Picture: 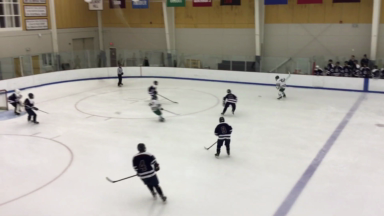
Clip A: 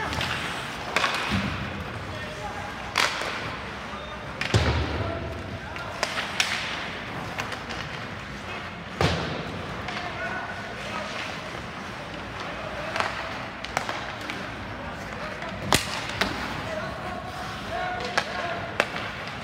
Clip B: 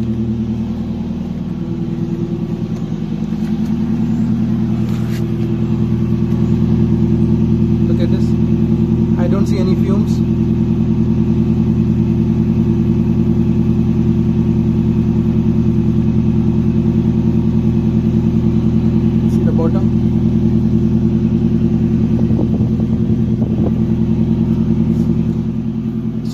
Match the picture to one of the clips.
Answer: A